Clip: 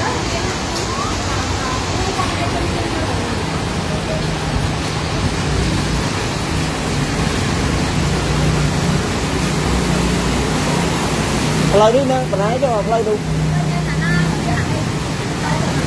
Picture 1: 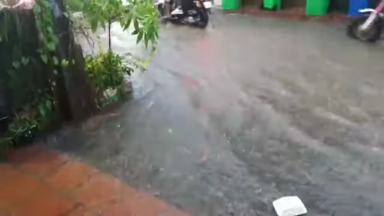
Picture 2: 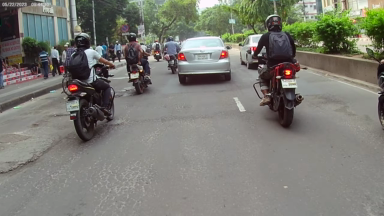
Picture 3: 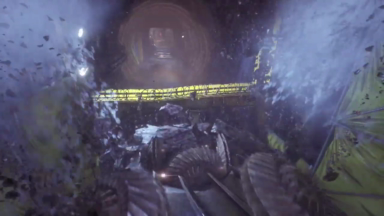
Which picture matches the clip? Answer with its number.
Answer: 1